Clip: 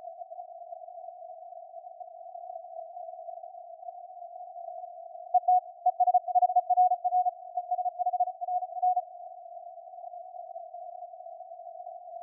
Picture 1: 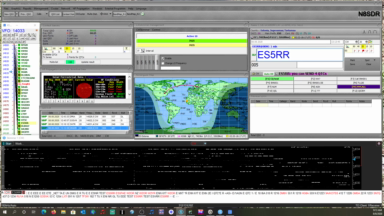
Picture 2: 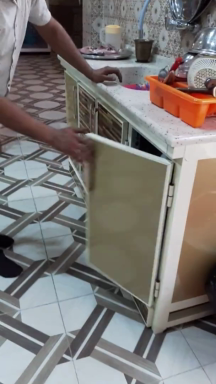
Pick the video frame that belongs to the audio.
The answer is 1